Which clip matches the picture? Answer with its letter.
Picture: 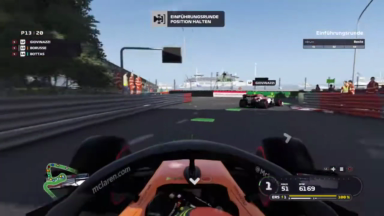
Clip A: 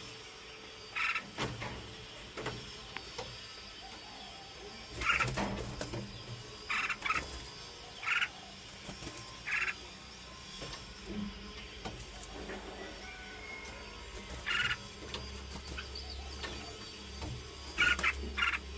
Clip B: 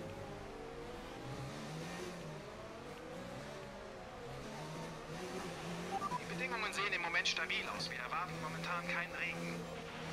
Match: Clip B